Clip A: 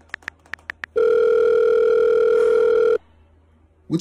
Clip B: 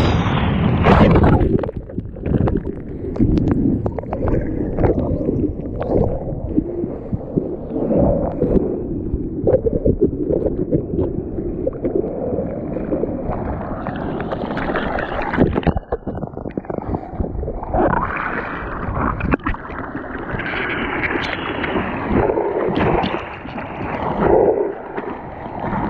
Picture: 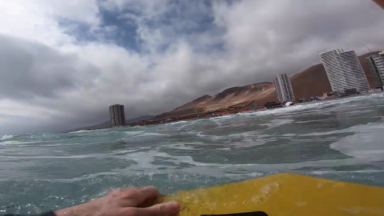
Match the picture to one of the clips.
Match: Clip B